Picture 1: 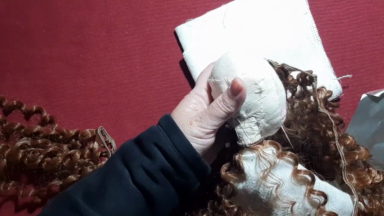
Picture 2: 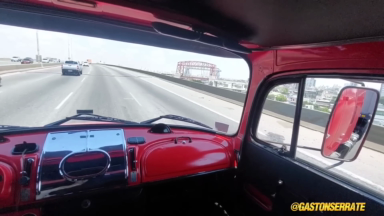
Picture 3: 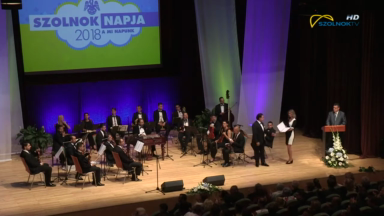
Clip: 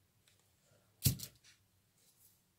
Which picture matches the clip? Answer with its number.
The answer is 1